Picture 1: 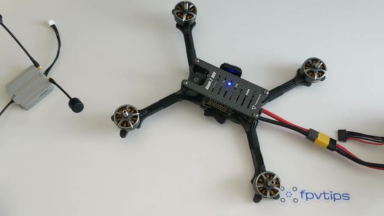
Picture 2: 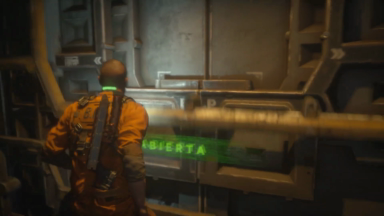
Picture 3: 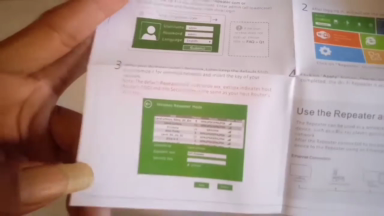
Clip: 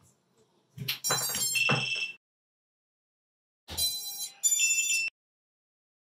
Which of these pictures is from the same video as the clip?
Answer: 1